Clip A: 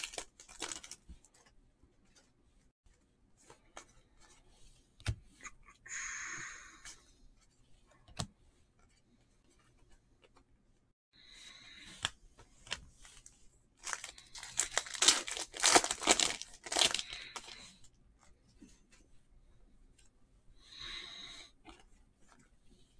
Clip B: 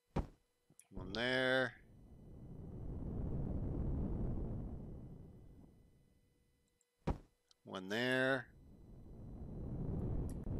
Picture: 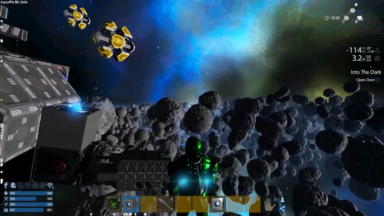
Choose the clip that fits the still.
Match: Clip B